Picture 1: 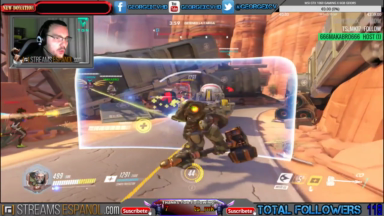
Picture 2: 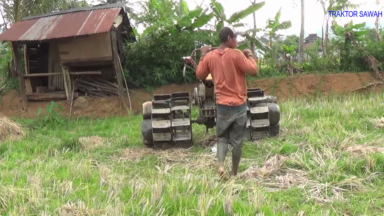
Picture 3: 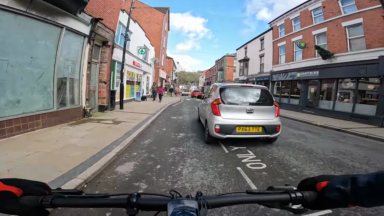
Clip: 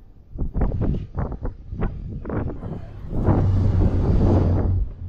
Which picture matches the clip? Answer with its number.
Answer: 3